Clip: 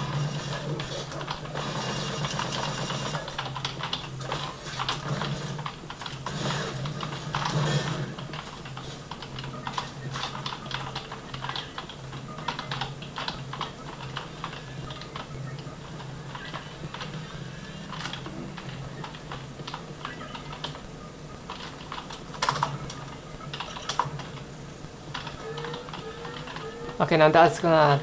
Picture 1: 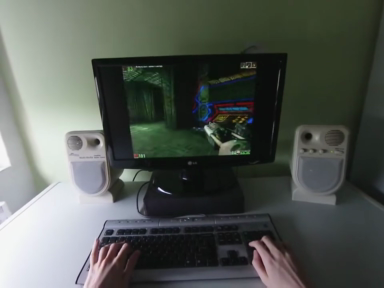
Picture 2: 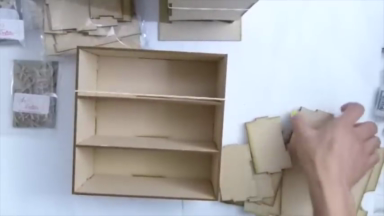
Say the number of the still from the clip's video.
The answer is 1